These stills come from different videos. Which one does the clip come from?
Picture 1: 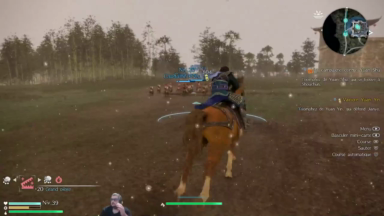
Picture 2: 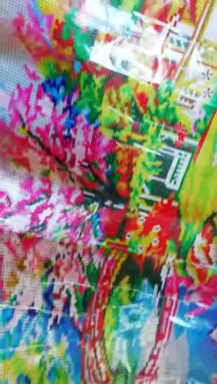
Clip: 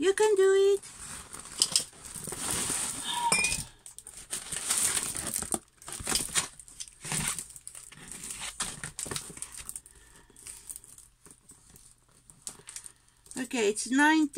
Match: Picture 2